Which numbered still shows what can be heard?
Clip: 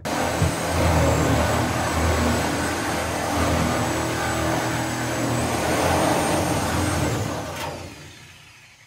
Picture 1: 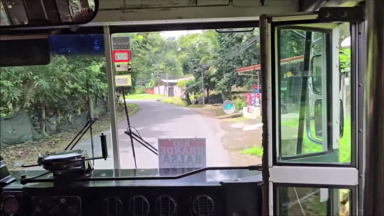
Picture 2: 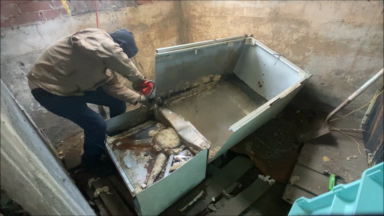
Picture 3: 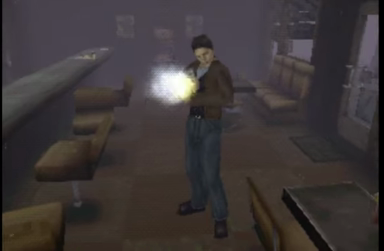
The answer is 2